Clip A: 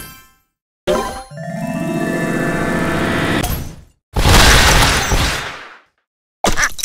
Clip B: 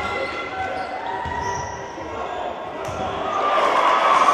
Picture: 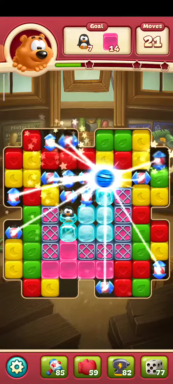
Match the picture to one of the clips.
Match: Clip A